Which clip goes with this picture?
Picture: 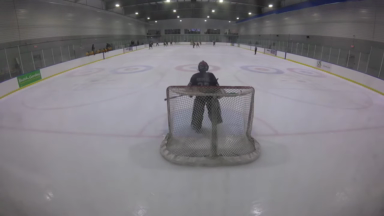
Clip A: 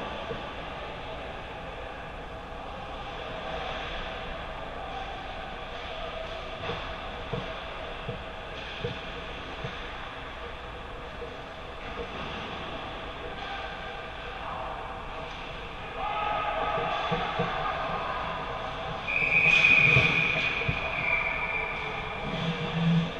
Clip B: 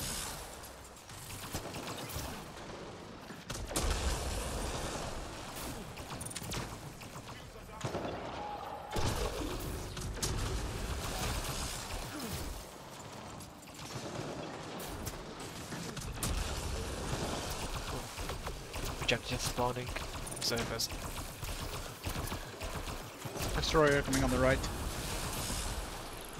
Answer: A